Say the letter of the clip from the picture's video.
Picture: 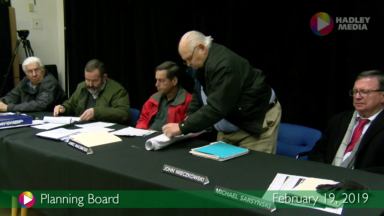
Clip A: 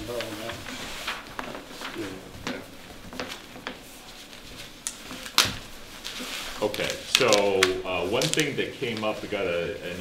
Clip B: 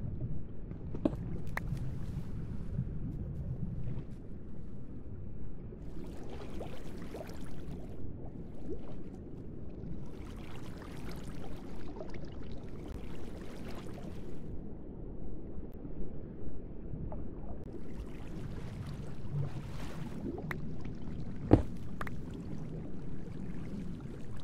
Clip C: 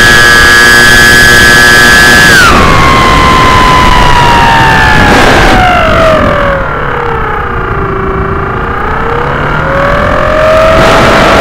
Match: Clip A